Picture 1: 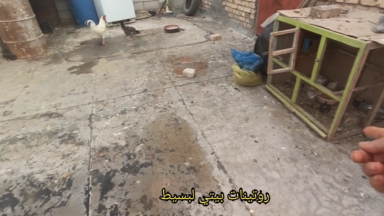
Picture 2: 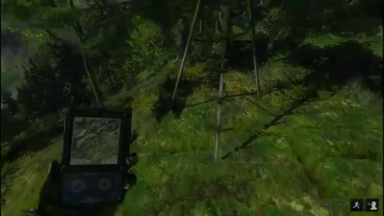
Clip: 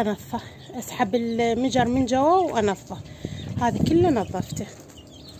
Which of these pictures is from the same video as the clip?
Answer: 1